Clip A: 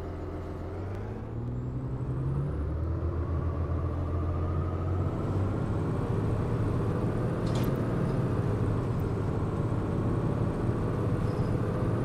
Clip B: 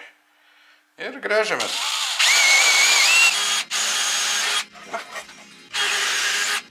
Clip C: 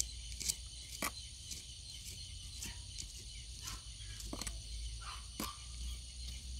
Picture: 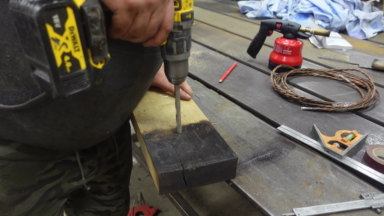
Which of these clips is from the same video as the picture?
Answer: B